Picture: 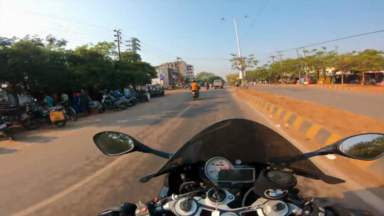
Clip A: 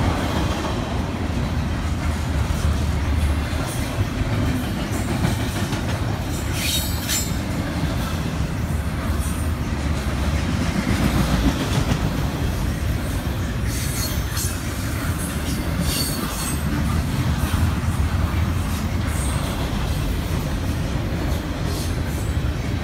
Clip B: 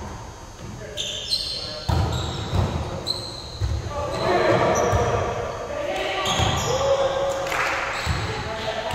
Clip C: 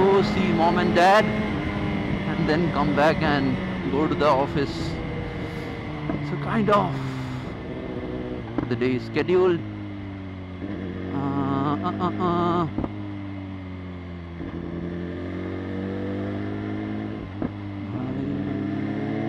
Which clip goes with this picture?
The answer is C